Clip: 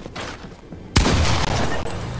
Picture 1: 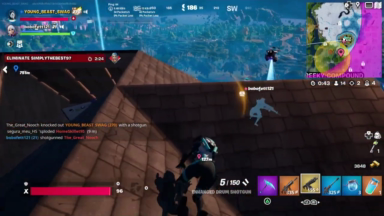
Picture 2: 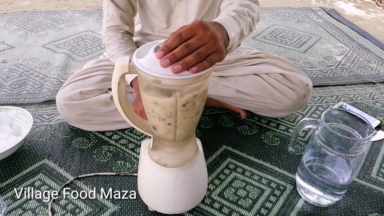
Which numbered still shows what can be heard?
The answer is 1